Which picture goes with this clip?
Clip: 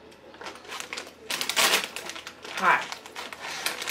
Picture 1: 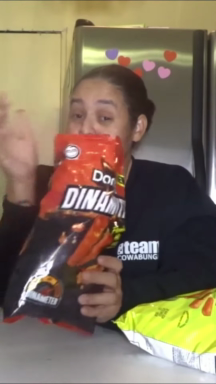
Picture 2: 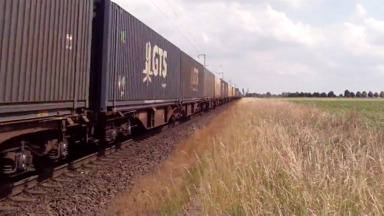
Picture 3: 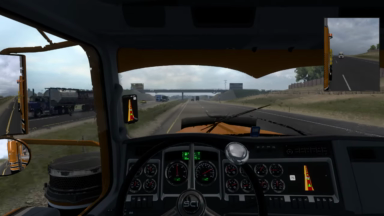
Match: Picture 1